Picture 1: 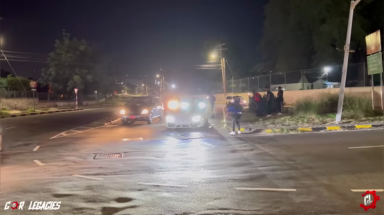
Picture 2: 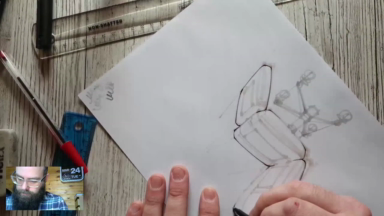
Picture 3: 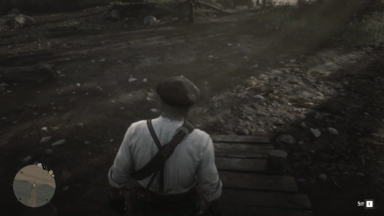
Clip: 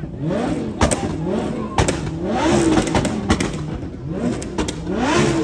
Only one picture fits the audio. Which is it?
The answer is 1